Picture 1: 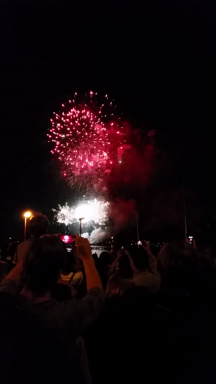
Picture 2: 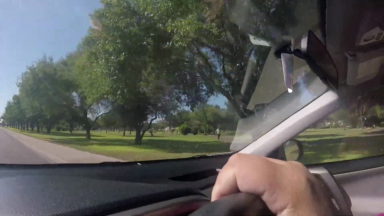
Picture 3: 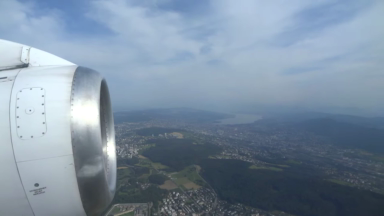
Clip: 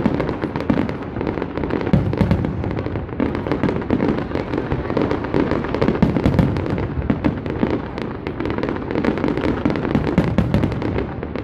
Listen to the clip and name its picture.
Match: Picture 1